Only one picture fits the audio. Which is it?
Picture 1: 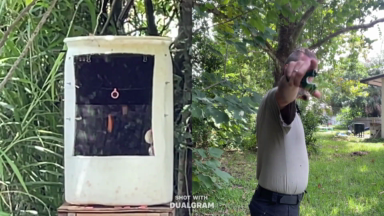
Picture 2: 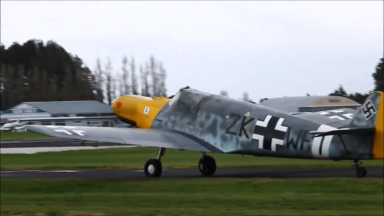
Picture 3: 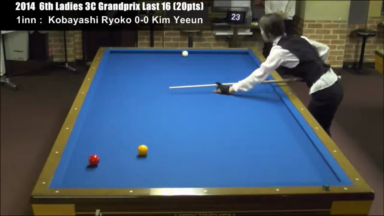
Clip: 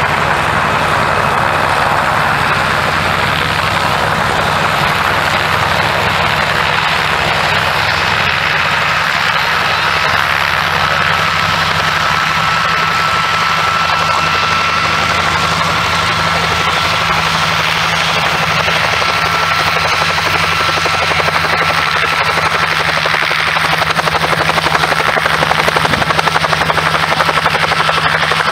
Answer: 2